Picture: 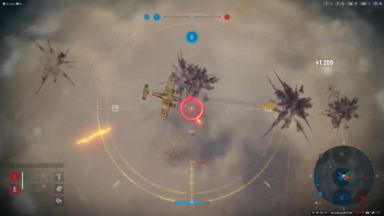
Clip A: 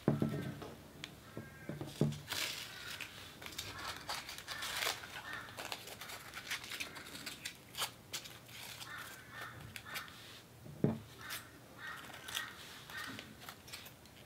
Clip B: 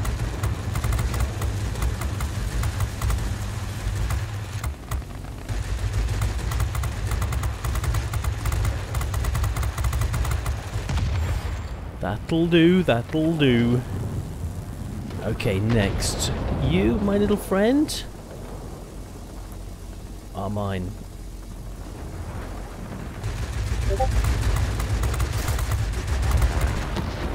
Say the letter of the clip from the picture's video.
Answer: B